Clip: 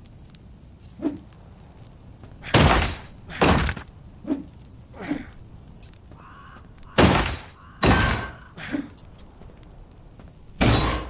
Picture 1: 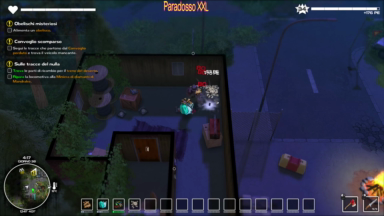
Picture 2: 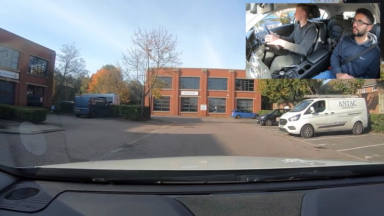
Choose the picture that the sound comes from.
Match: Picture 1